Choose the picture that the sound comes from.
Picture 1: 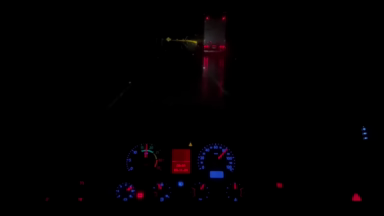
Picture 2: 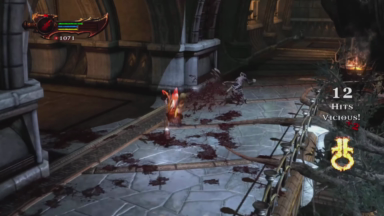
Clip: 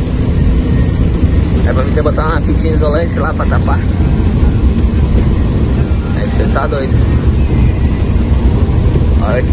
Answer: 1